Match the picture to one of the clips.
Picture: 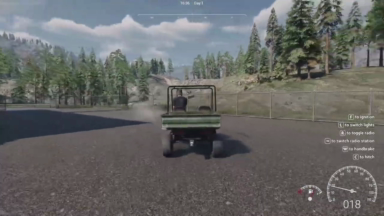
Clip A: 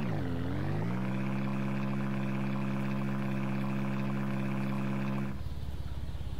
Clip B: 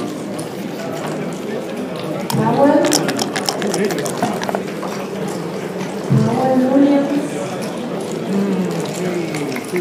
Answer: A